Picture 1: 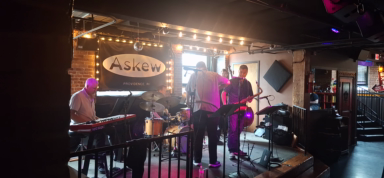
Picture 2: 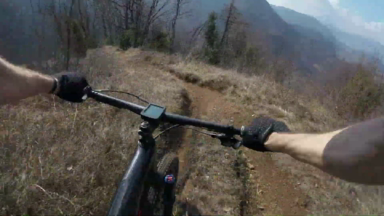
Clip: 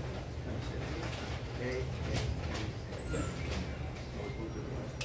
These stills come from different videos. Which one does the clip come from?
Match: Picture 1